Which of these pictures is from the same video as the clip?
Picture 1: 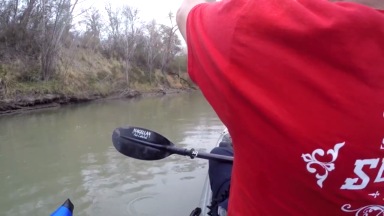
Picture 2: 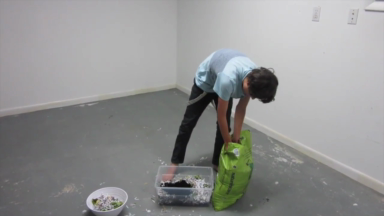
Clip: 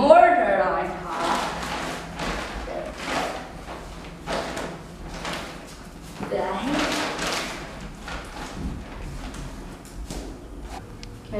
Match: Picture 2